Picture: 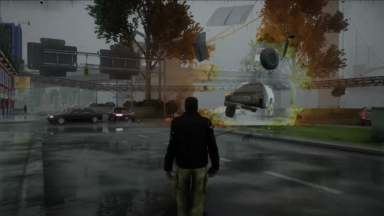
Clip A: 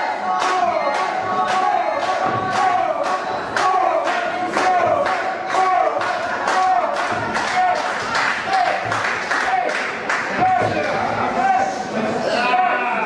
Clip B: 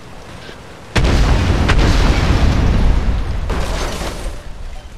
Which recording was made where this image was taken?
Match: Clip B